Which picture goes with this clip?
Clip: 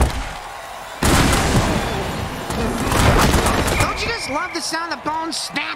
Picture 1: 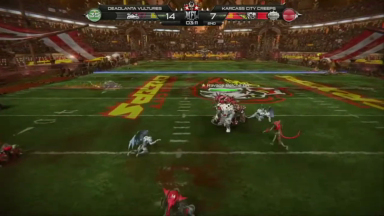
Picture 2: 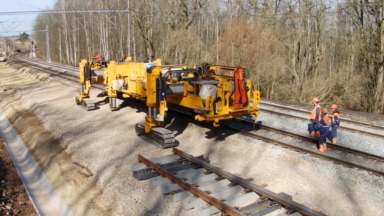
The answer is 1